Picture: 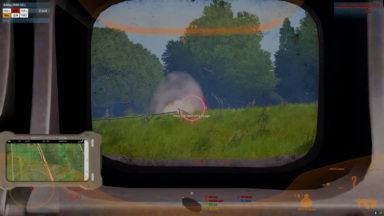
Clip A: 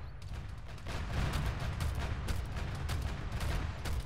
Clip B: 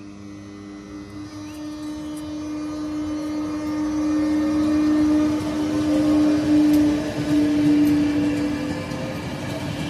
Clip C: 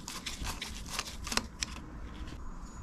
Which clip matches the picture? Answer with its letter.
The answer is A